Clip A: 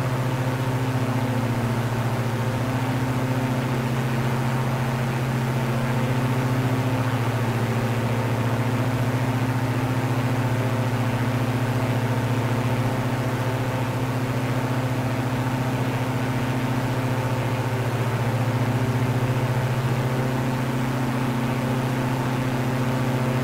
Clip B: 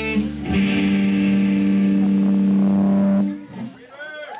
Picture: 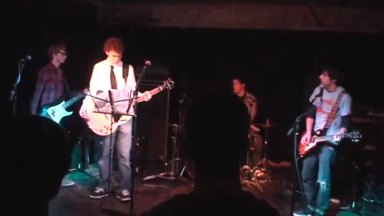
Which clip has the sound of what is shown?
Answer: B